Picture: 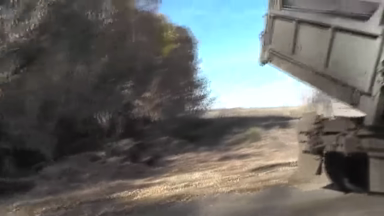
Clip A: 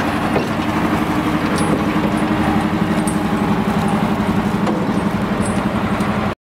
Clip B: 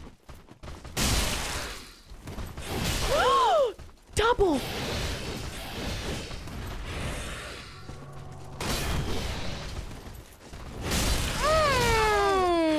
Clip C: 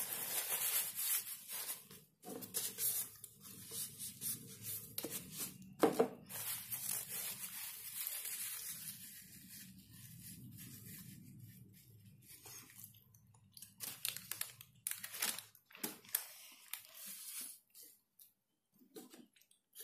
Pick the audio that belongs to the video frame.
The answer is A